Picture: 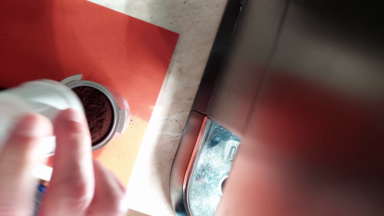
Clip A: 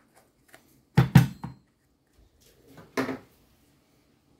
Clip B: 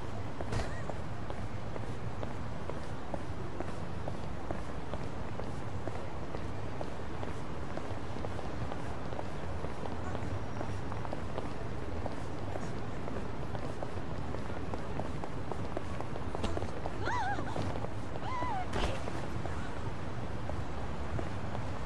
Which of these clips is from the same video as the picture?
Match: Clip A